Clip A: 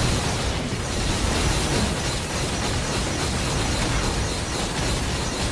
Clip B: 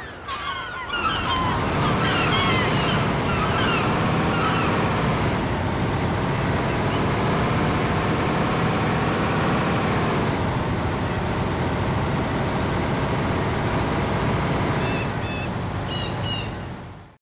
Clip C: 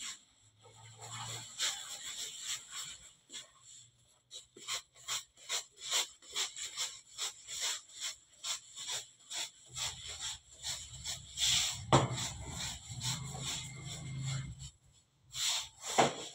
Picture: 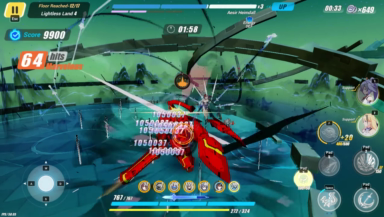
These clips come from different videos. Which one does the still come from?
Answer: A